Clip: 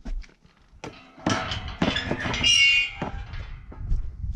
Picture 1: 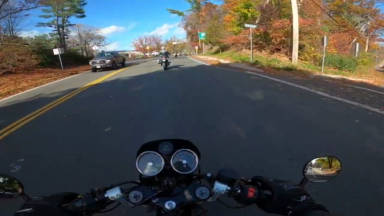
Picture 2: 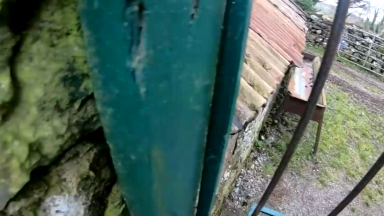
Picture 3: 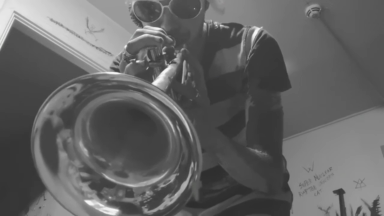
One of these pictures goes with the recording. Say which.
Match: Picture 2